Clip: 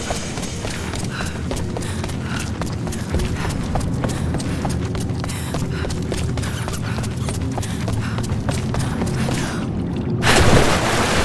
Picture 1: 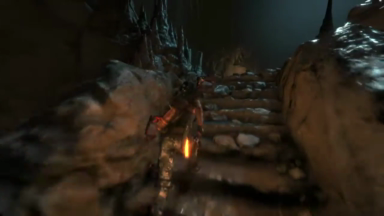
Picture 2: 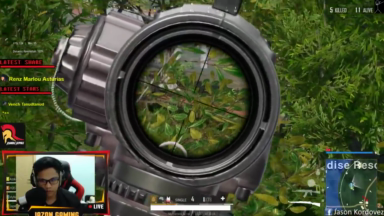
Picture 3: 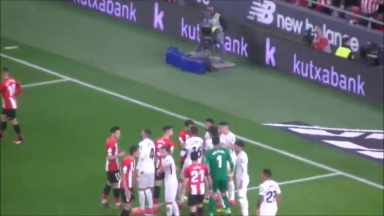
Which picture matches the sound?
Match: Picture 1